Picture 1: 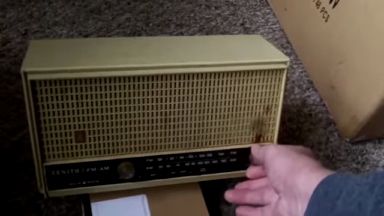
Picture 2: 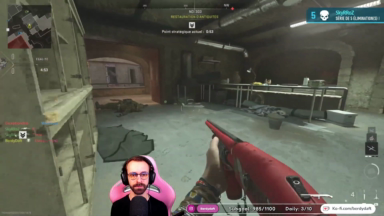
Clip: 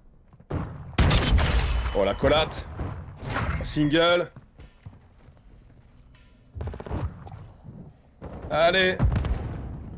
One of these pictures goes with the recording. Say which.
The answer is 2